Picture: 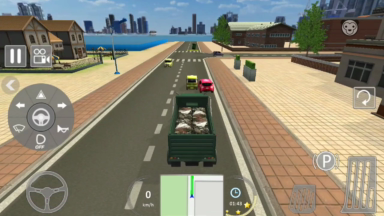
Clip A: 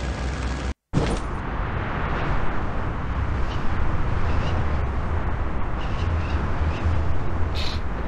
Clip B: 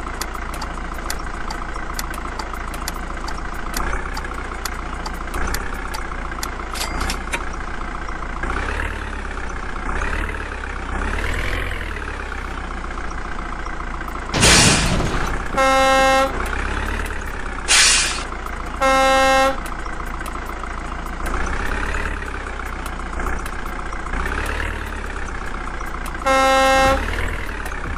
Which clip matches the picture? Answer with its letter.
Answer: B